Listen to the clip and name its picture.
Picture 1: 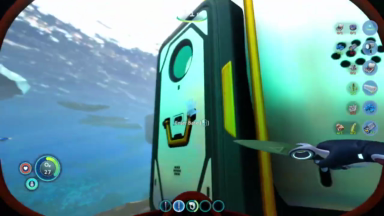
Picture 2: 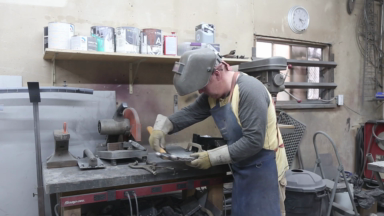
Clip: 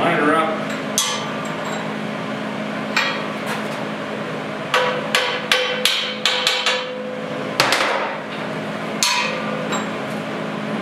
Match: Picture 2